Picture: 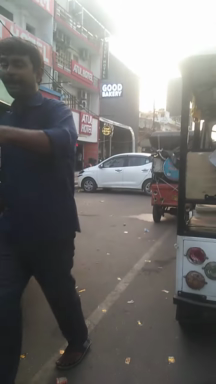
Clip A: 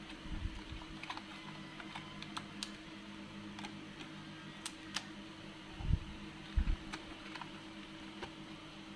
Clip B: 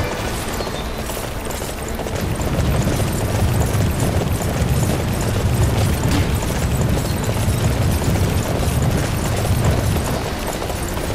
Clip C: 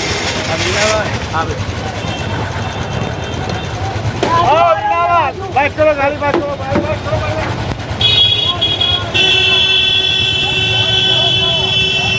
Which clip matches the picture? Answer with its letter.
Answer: C